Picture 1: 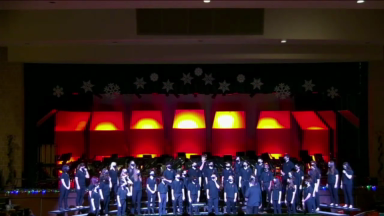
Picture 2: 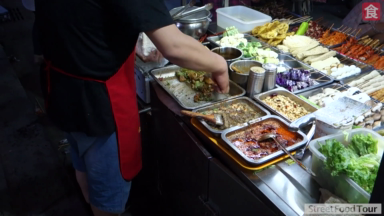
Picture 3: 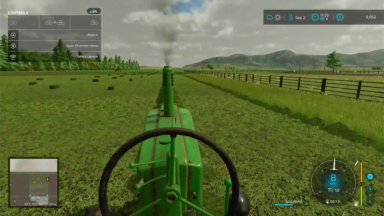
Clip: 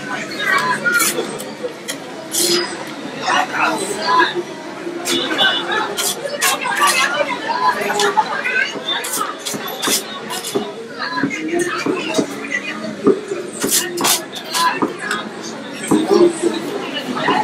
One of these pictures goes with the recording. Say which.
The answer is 2